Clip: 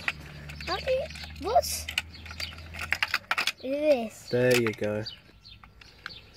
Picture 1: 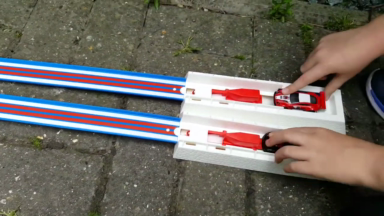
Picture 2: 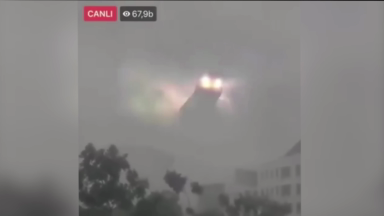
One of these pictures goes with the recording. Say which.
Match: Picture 1